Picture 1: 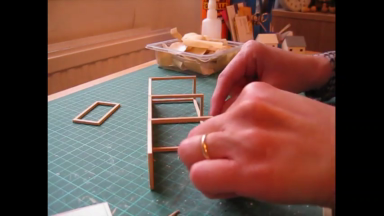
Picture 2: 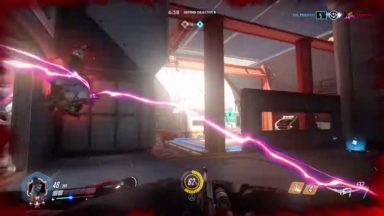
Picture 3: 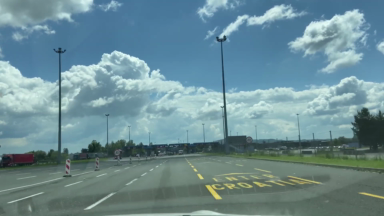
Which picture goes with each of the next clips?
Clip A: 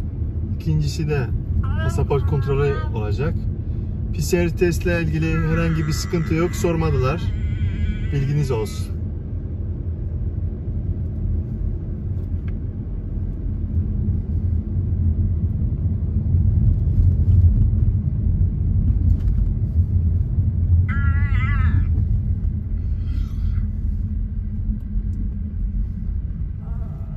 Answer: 3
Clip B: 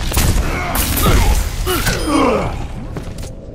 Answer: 2